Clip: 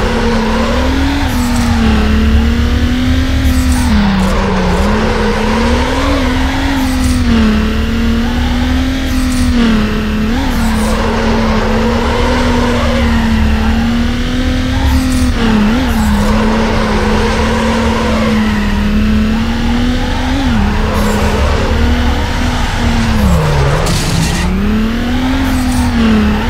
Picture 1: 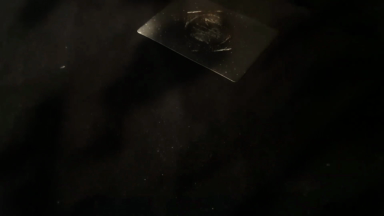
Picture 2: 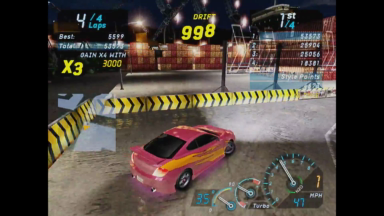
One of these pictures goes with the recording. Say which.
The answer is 2